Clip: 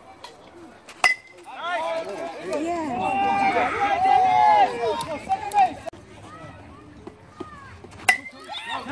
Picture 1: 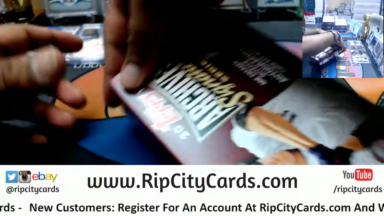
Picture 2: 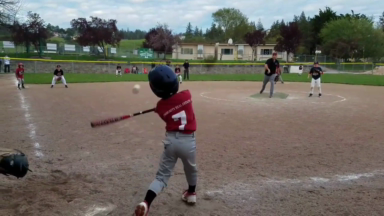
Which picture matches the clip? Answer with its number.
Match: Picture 2